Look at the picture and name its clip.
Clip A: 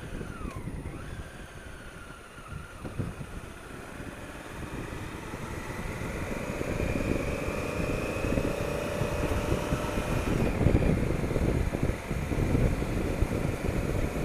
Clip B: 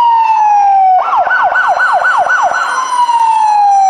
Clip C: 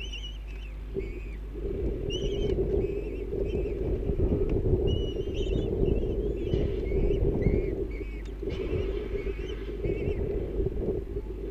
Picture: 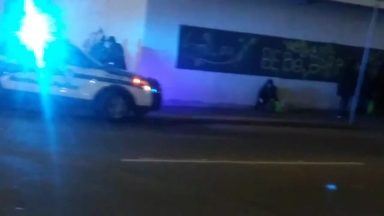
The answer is B